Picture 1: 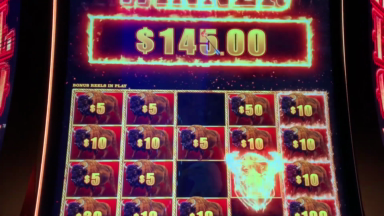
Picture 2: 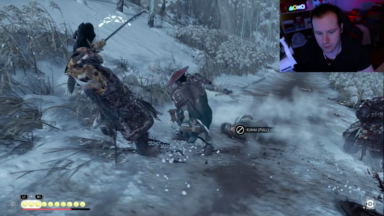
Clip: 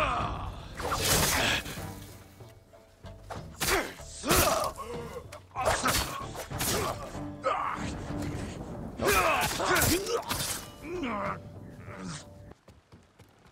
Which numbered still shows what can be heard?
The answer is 2